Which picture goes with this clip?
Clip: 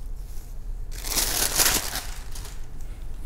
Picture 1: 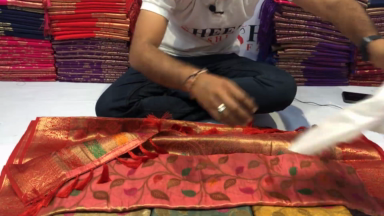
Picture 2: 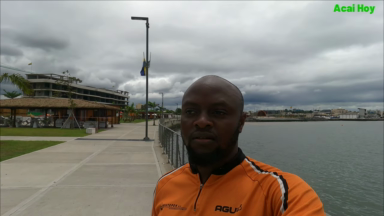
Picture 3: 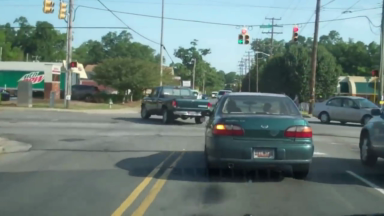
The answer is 1